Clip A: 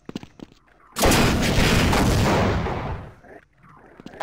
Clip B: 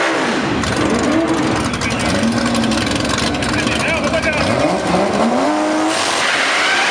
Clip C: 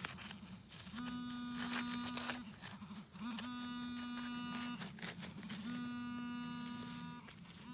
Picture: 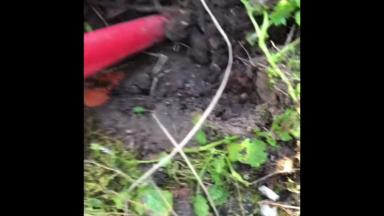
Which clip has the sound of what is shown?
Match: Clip C